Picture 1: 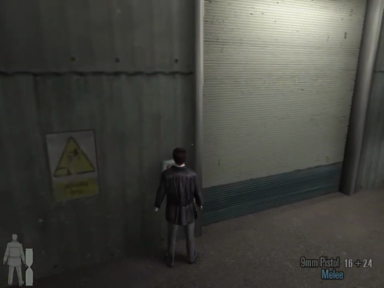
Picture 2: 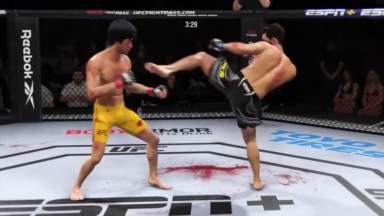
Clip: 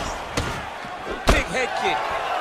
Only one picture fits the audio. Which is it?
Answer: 2